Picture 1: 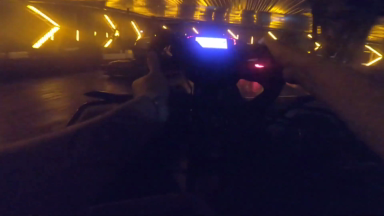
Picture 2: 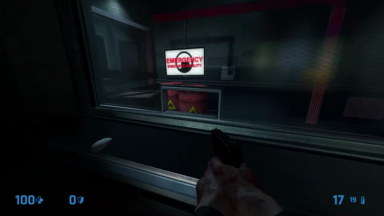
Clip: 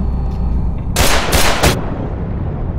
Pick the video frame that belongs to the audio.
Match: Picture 2